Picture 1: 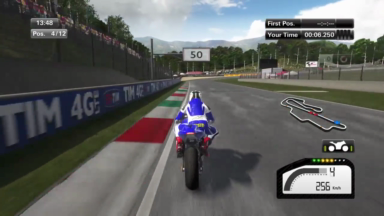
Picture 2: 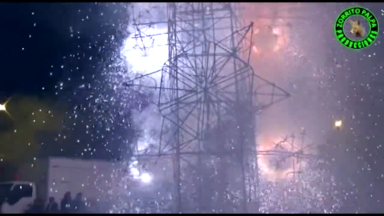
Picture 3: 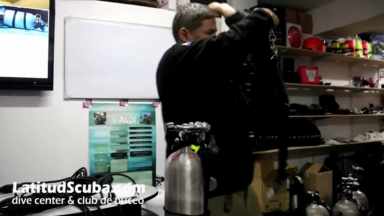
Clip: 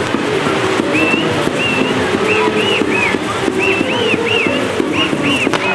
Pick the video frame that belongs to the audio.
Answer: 2